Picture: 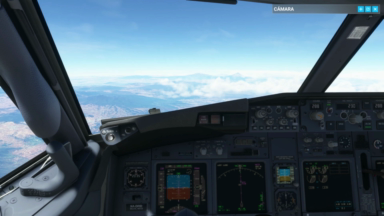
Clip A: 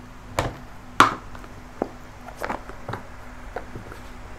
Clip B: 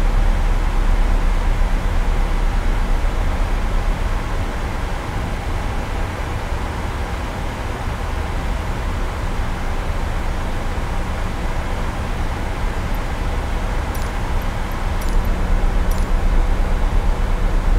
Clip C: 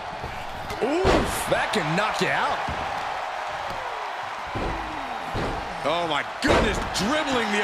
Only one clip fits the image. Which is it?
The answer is B